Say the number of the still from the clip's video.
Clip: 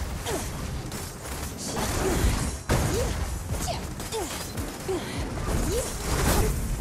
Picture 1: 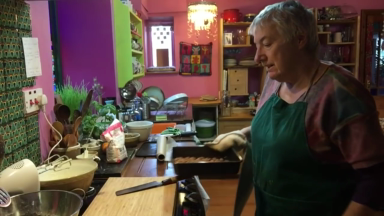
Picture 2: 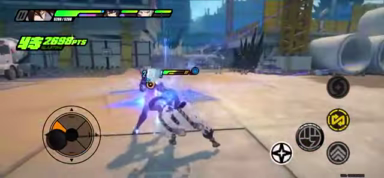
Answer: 2